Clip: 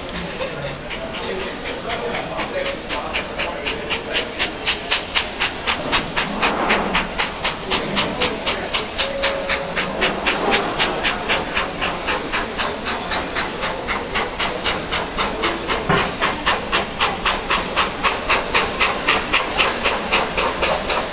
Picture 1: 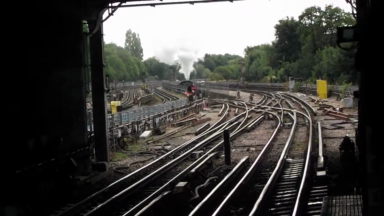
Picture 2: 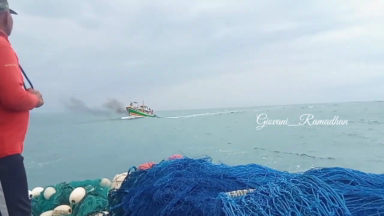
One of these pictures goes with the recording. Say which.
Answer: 1